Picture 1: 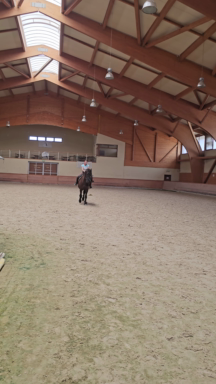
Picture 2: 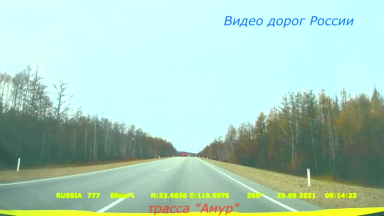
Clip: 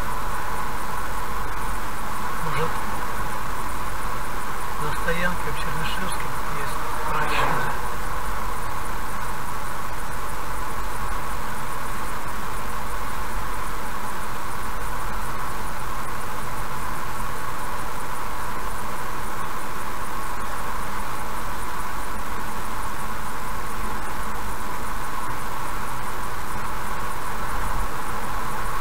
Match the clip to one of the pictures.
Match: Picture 2